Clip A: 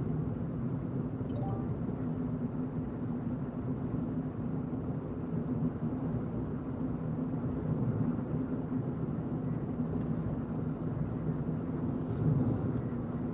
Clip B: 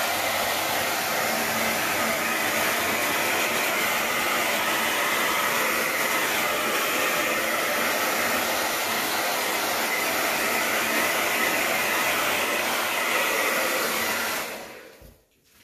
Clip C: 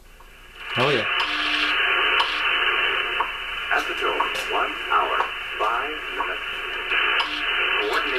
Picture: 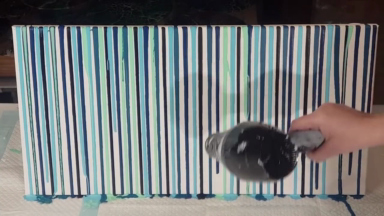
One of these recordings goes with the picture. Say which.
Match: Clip B